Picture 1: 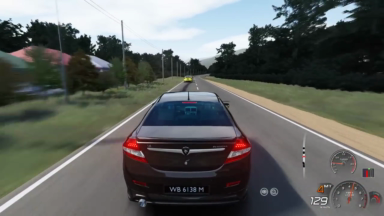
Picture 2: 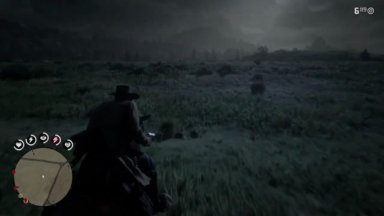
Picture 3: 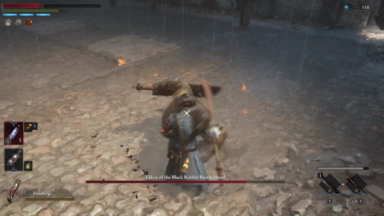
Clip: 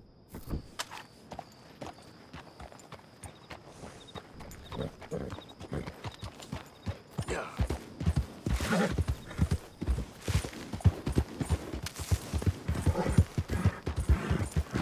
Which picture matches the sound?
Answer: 2